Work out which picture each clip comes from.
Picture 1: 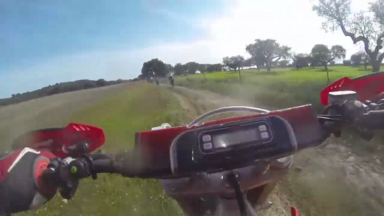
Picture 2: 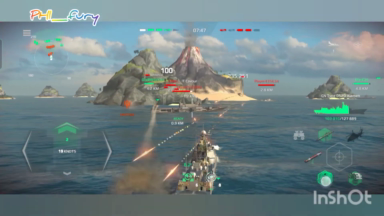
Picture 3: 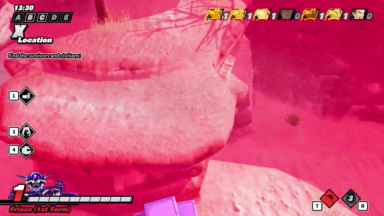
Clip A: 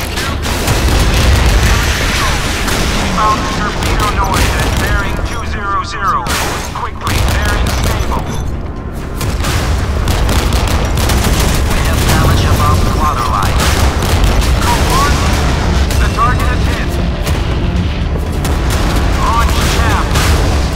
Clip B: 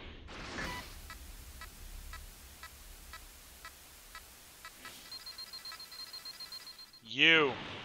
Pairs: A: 2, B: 3